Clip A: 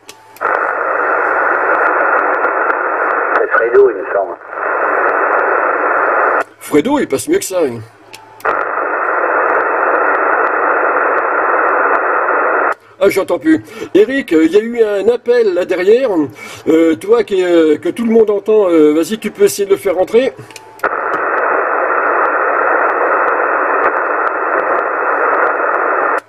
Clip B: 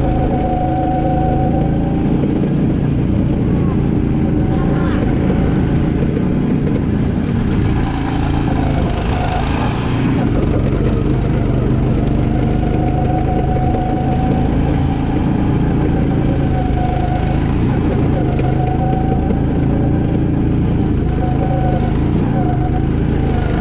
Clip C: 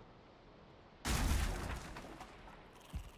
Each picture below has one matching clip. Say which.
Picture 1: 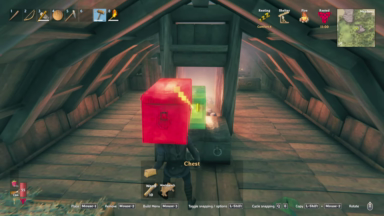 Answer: C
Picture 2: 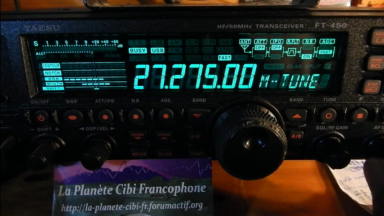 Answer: A